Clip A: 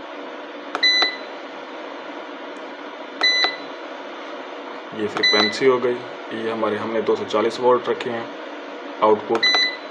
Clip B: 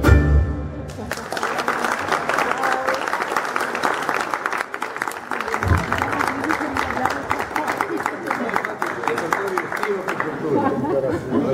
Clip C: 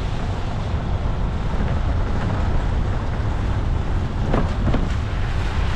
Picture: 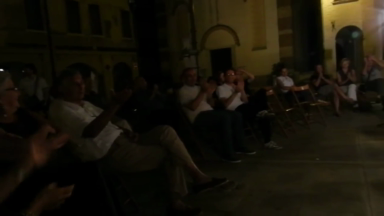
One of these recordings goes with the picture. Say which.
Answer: B